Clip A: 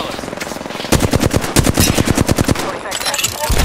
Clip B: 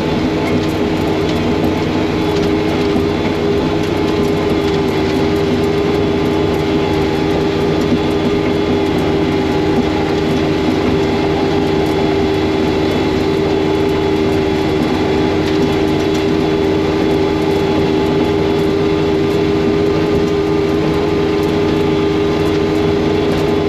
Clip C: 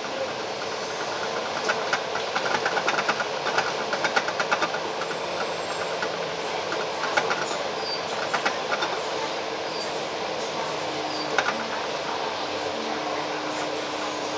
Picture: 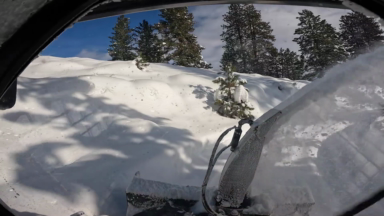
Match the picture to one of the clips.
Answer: B